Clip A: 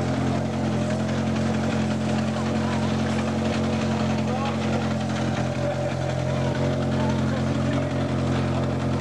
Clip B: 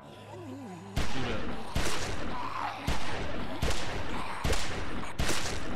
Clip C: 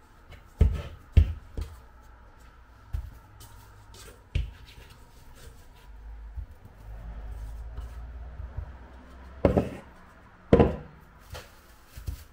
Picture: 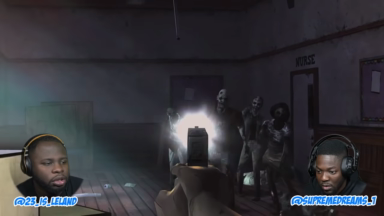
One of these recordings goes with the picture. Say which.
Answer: B